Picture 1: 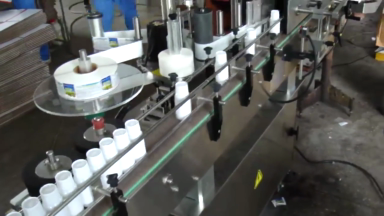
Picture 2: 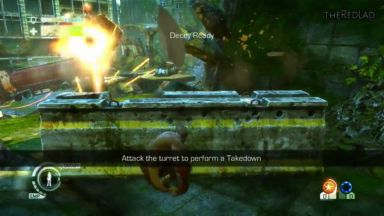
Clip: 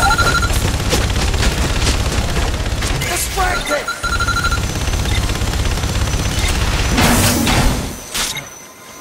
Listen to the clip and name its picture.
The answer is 2